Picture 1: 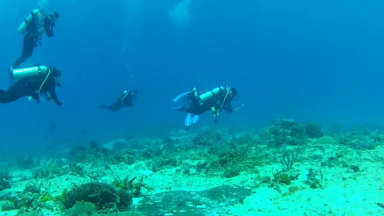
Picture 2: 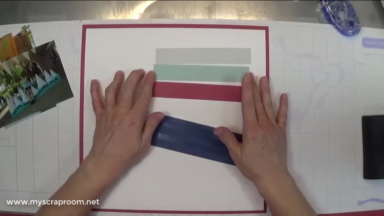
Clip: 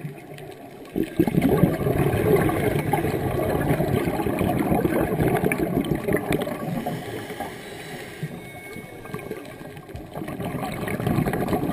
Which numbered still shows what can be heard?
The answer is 1